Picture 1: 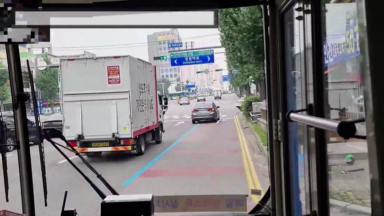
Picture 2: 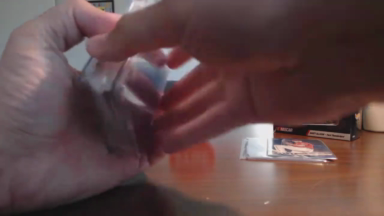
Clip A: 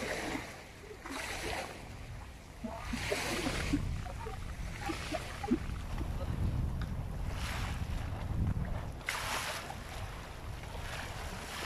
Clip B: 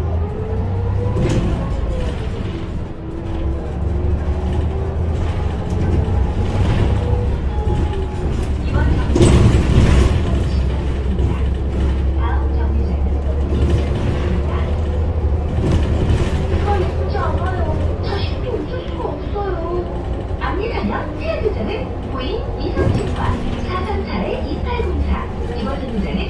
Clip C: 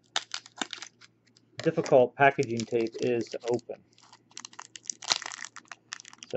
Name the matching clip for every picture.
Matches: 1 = B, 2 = C